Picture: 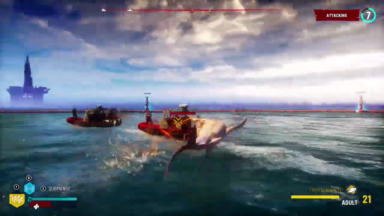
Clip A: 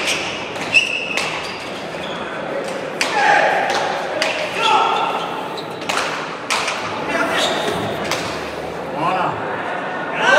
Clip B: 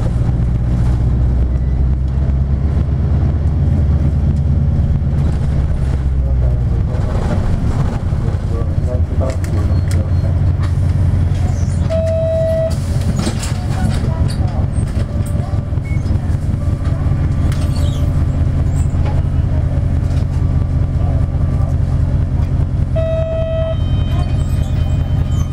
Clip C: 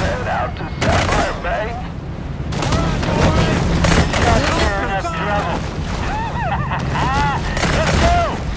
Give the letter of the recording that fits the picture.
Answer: C